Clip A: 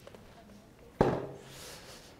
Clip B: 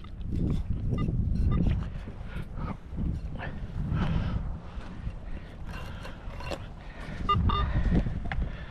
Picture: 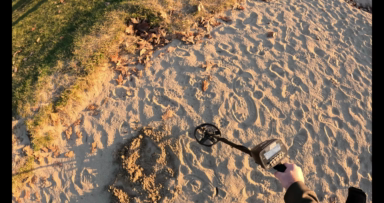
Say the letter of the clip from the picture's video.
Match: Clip B